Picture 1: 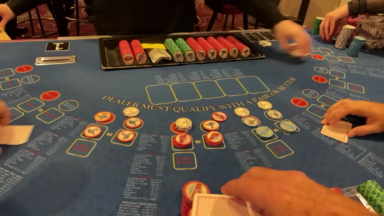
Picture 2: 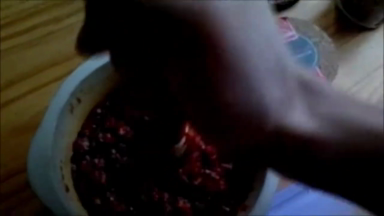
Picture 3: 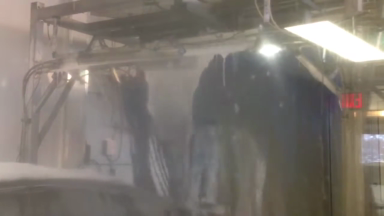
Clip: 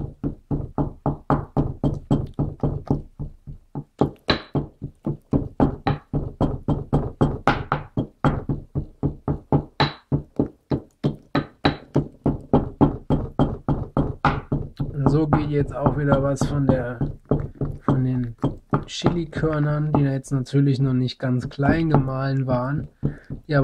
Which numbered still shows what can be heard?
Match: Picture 2